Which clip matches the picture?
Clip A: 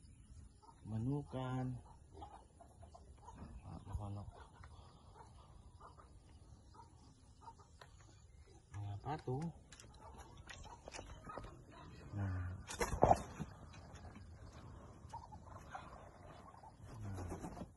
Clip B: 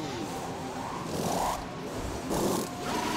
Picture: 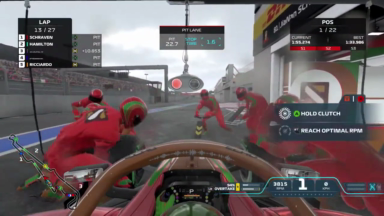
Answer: B